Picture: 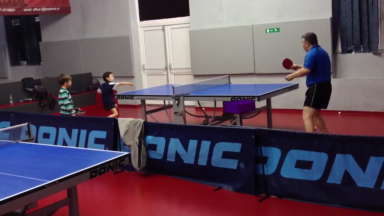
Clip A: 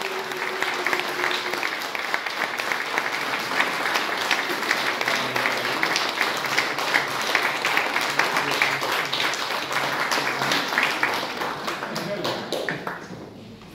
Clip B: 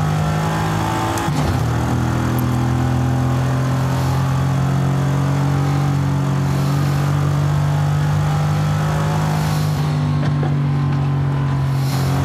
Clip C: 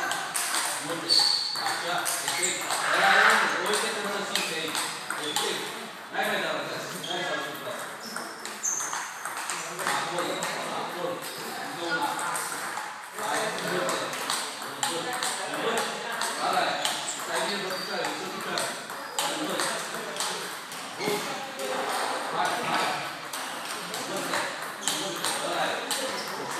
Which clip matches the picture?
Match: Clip C